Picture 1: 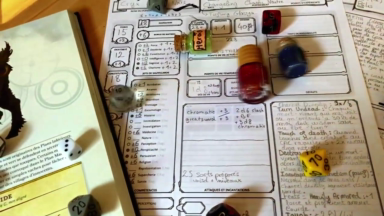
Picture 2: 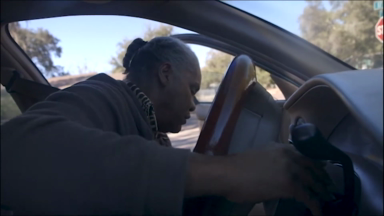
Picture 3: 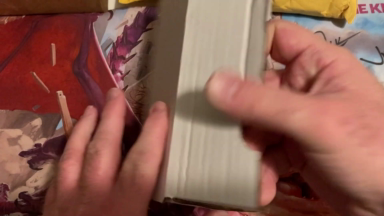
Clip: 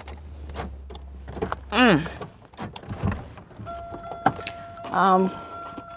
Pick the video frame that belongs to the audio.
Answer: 2